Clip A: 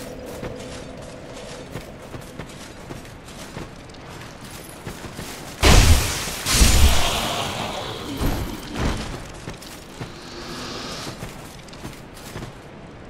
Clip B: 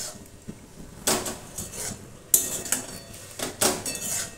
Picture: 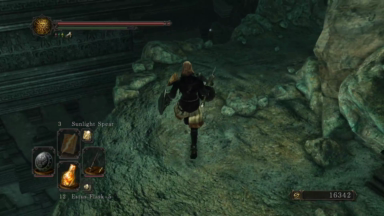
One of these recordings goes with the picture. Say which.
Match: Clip A